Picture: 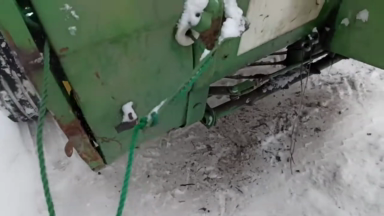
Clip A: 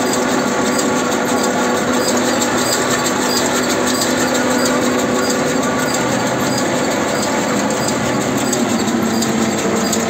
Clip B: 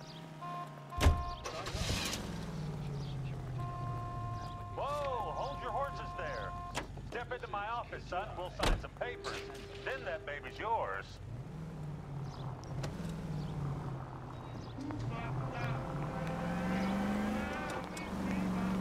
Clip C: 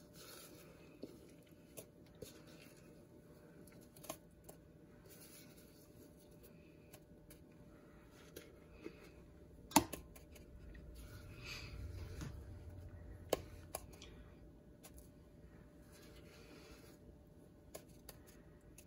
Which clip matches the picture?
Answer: A